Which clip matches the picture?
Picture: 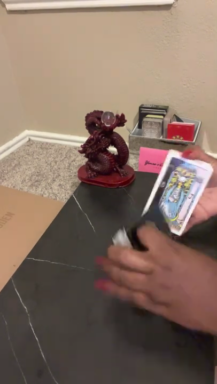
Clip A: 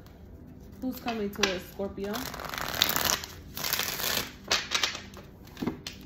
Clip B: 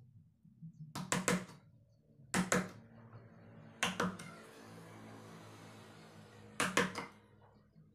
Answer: A